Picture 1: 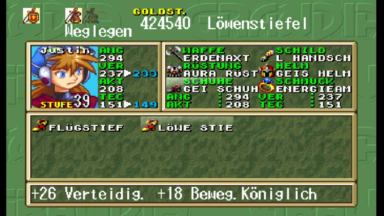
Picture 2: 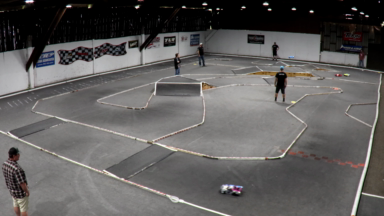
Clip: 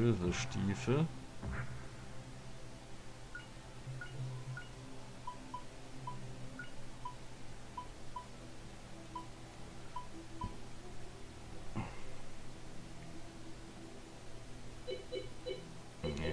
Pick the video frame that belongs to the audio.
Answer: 1